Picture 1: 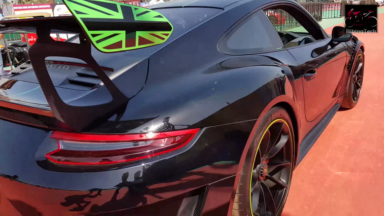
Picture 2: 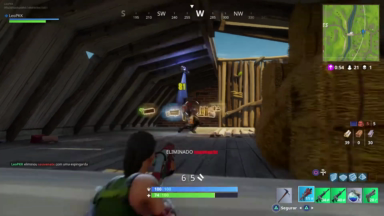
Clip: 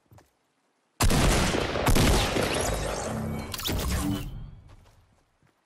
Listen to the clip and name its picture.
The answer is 2